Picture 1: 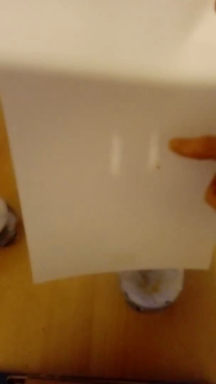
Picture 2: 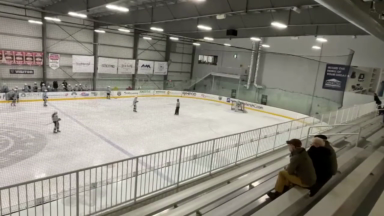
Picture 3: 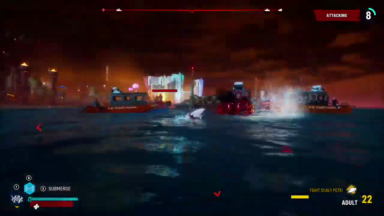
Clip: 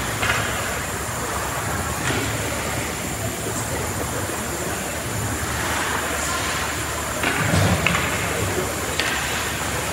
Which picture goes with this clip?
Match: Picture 2